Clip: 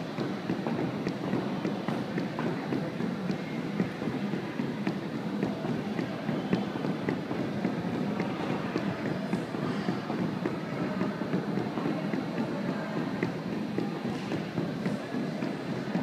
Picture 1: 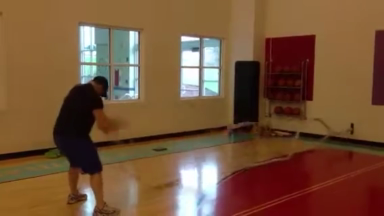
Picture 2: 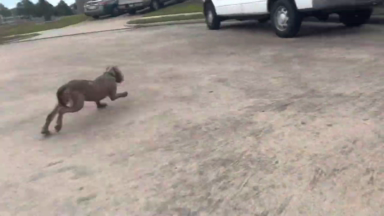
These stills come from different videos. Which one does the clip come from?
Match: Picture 1